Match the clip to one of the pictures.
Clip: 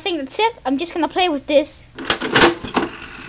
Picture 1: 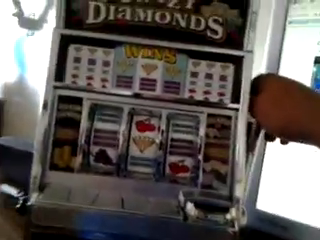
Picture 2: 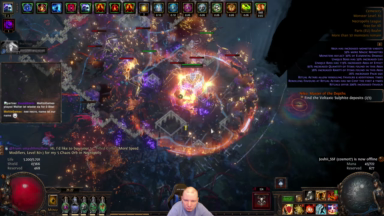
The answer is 1